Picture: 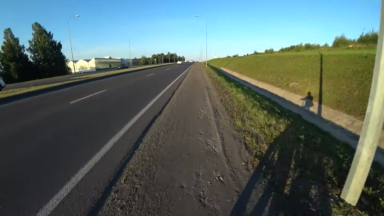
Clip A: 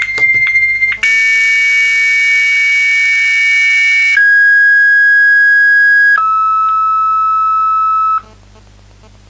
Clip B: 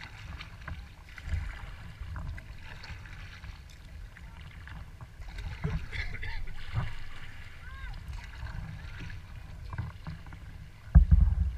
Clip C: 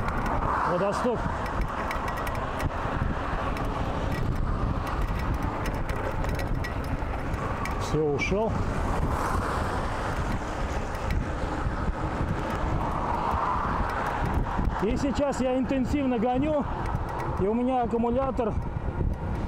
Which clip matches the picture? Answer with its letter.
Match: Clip C